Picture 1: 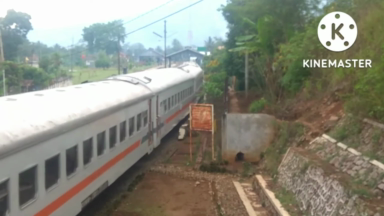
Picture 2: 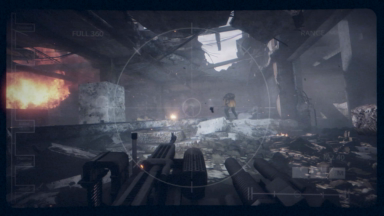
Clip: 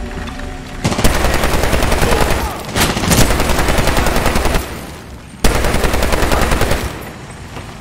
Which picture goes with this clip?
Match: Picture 2